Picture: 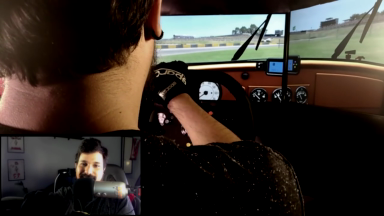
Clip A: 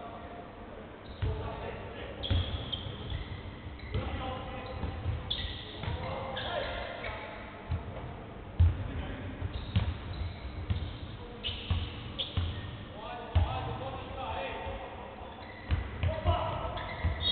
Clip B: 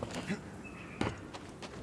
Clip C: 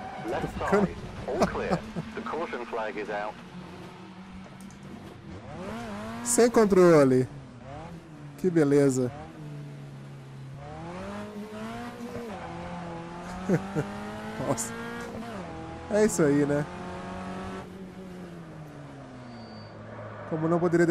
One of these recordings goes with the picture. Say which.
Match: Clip C